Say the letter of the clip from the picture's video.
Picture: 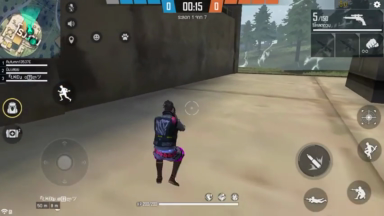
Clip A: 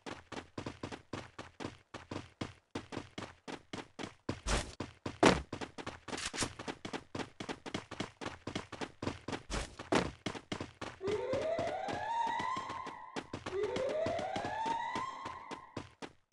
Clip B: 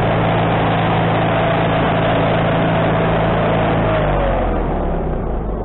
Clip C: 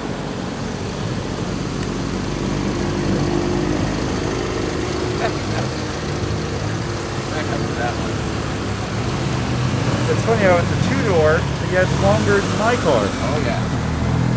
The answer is A